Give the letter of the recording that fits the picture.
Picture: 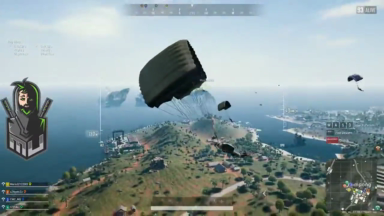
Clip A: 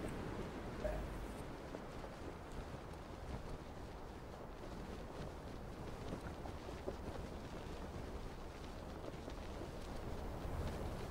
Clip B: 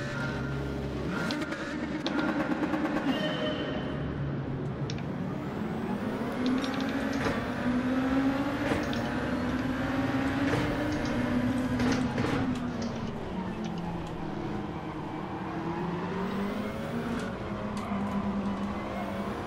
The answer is A